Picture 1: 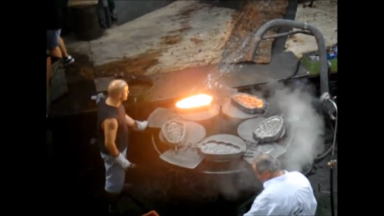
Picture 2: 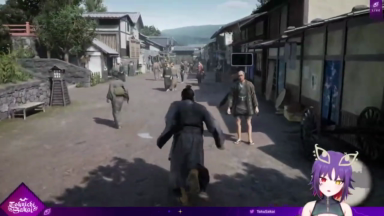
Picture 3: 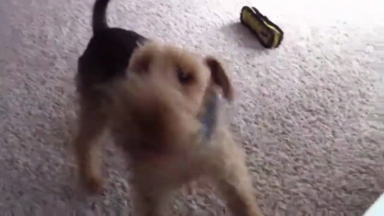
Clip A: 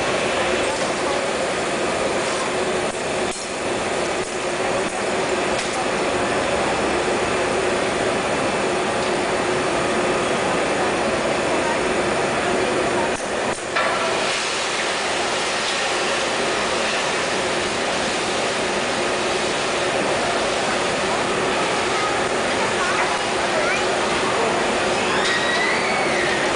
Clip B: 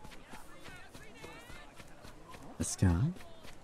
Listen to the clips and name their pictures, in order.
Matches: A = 1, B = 2